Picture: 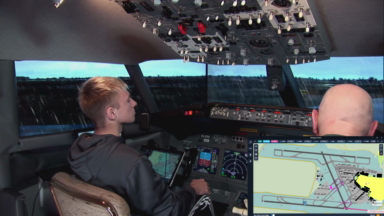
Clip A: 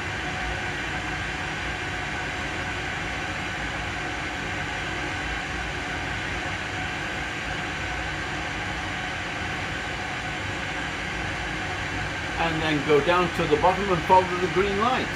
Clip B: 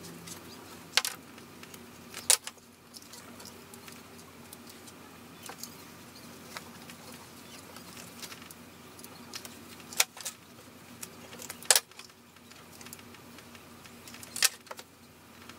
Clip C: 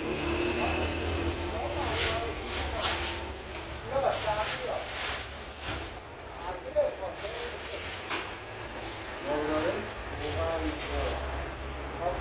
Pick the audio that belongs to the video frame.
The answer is A